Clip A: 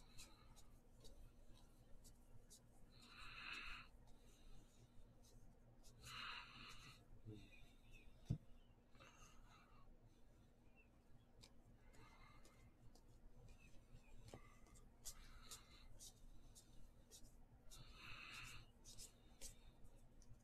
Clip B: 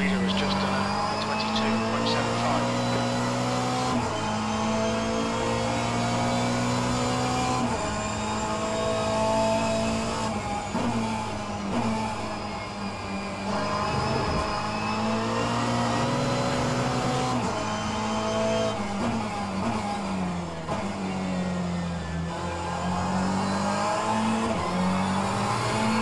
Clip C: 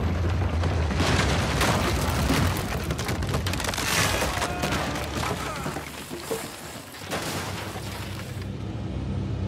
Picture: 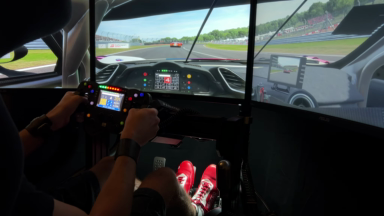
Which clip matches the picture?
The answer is B